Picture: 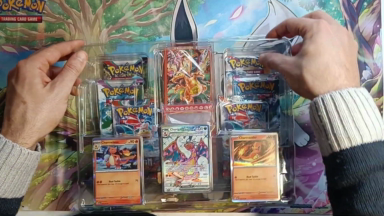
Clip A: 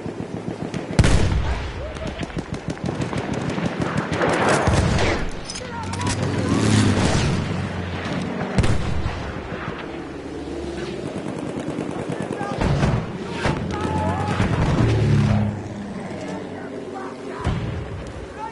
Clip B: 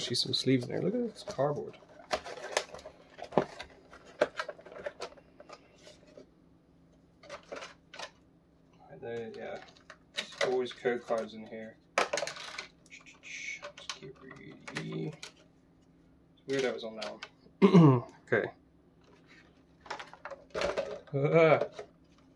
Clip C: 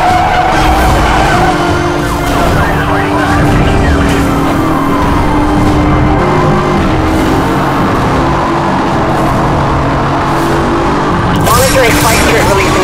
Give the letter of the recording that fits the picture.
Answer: B